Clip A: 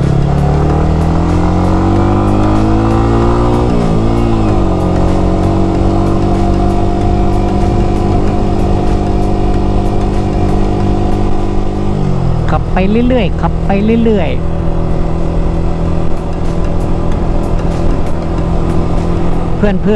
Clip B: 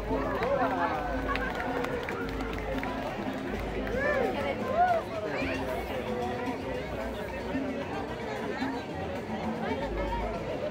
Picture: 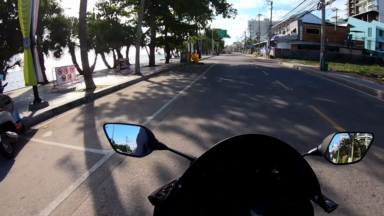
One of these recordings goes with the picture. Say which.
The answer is A